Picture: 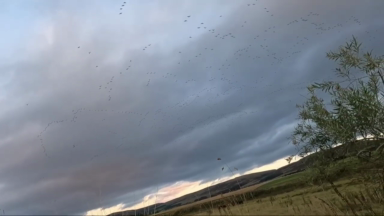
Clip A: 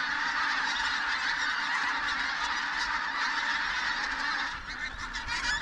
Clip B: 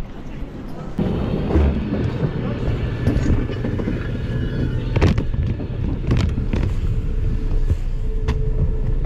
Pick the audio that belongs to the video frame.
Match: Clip A